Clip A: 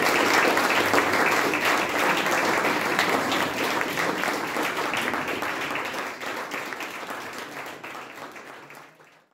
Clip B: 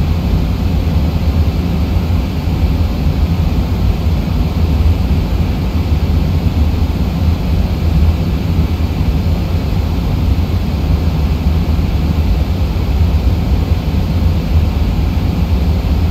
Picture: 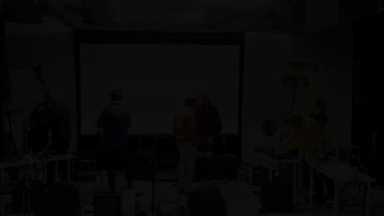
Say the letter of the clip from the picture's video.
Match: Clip A